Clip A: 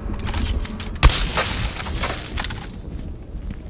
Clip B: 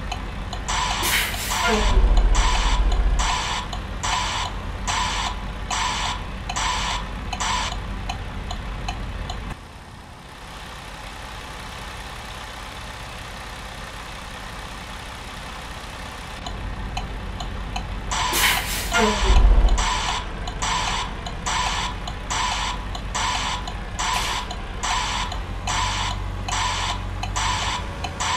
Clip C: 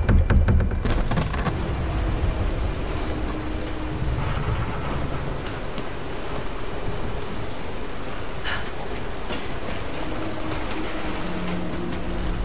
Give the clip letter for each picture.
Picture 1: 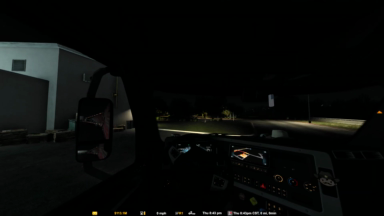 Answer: B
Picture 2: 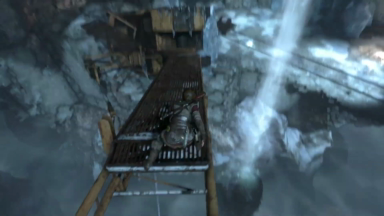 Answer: C